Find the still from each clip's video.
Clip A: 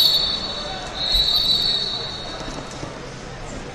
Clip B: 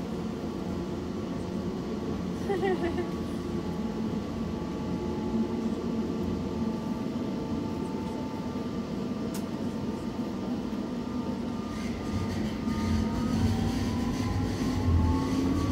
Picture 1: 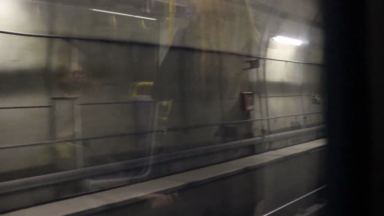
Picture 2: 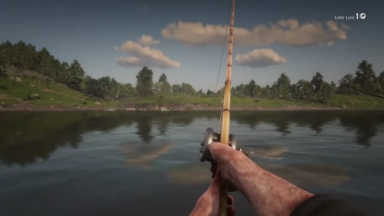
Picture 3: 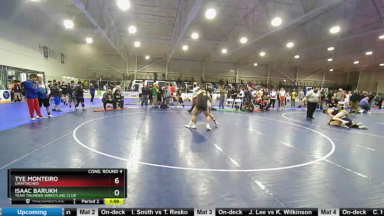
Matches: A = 3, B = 1